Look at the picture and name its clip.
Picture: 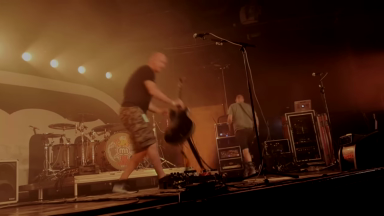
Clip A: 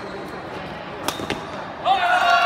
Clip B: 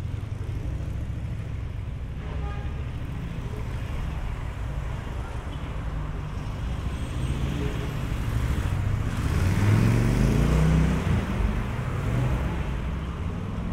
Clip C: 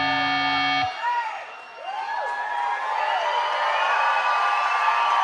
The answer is C